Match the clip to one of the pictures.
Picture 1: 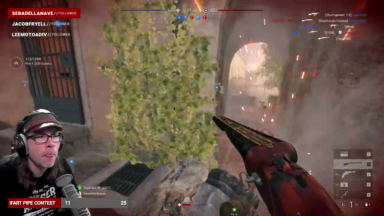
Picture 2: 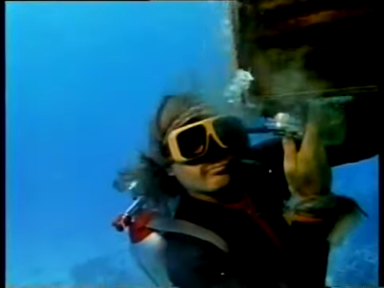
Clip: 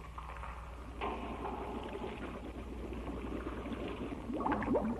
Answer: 2